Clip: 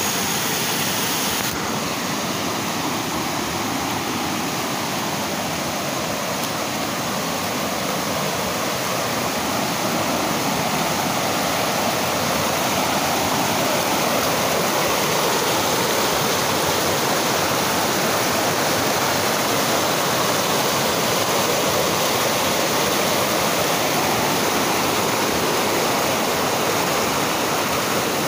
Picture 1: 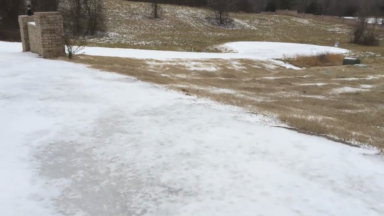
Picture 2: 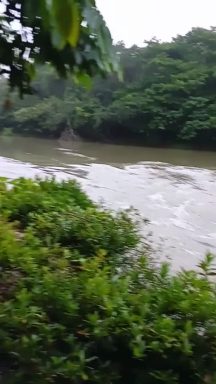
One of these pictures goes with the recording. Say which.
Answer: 2